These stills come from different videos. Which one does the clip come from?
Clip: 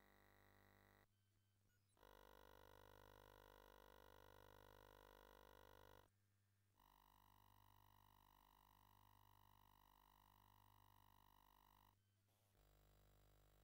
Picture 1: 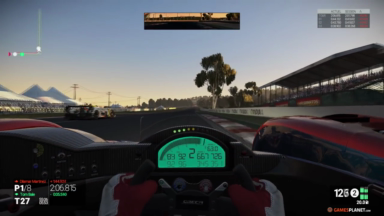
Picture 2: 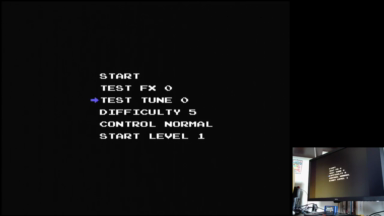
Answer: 2